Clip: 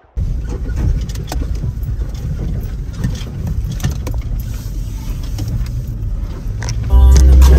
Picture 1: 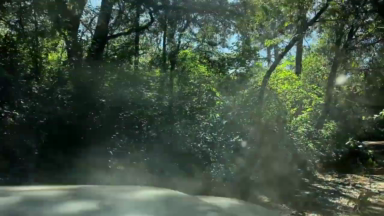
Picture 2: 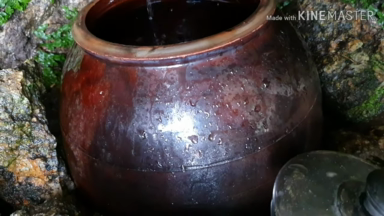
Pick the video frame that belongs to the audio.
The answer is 1